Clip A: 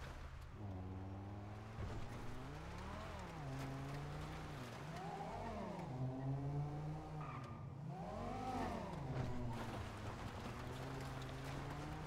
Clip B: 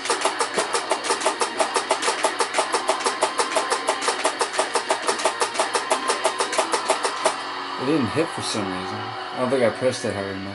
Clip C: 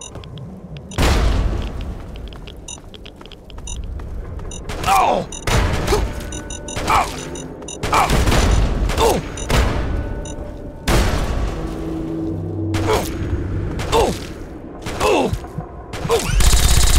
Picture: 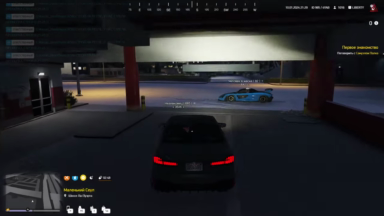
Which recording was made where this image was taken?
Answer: A